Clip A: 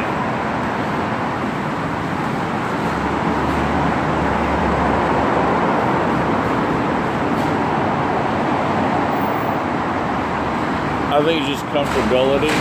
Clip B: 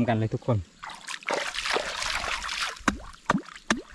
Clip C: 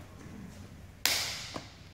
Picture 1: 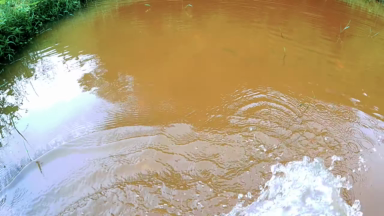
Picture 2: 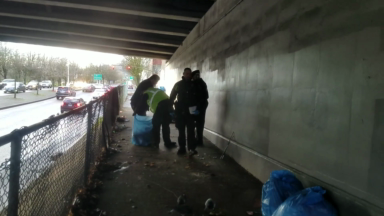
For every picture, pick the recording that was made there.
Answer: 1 B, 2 A